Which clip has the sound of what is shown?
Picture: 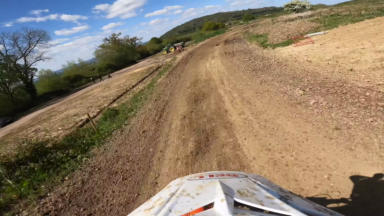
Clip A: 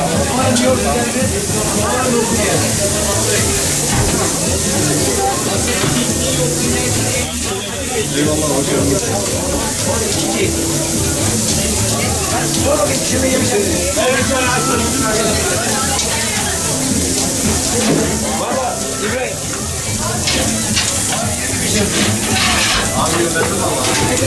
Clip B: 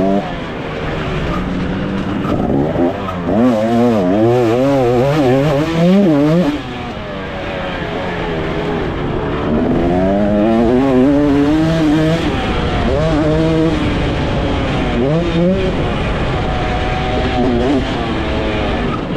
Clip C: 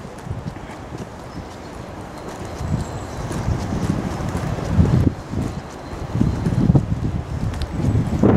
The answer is B